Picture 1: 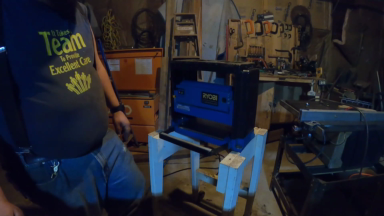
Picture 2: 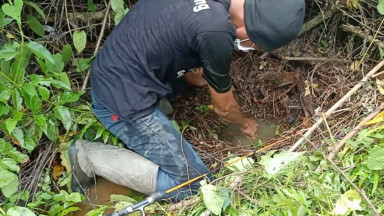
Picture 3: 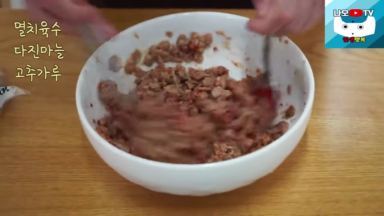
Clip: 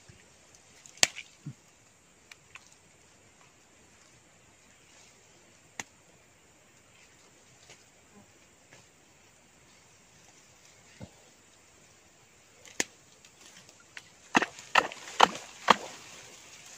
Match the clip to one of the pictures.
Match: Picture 2